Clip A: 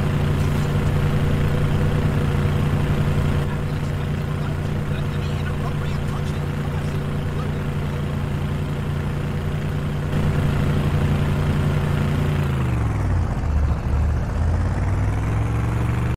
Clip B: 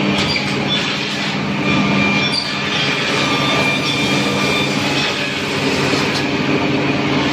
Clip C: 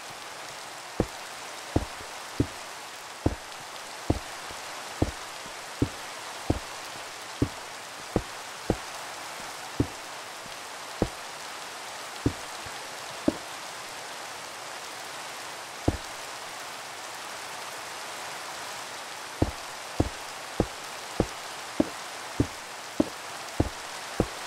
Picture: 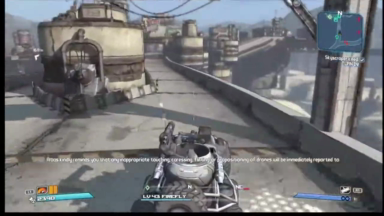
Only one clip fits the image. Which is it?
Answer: A